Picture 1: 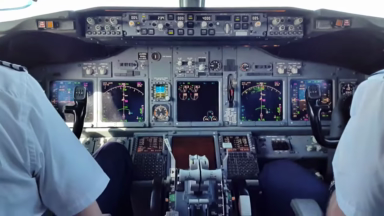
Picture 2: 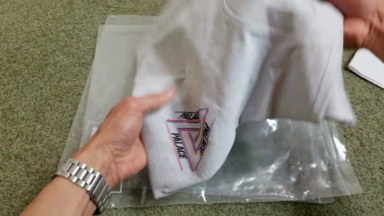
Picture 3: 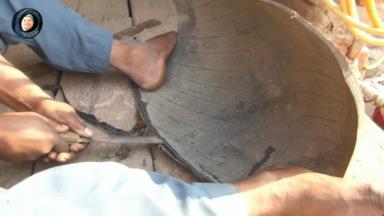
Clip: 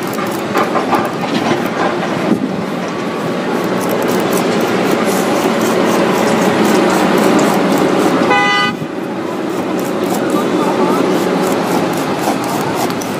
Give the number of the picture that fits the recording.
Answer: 3